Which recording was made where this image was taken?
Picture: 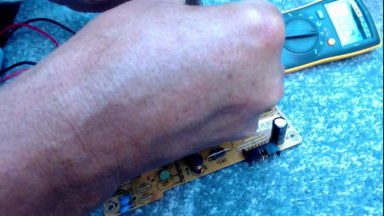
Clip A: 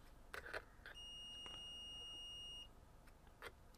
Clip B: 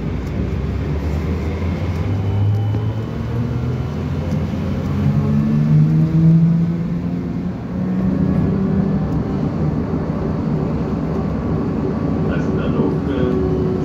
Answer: A